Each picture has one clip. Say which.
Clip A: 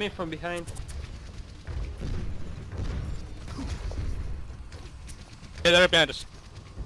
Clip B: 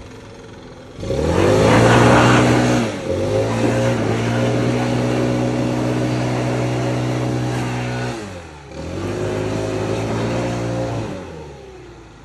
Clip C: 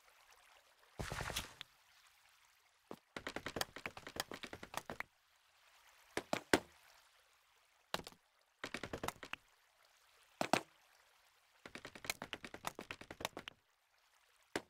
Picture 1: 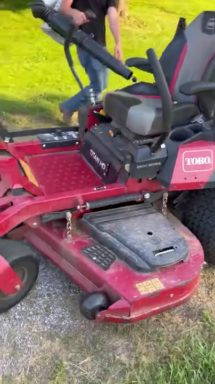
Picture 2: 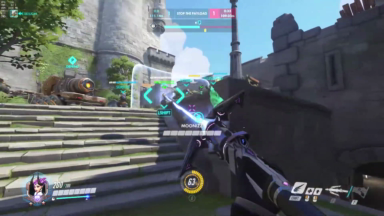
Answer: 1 B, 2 A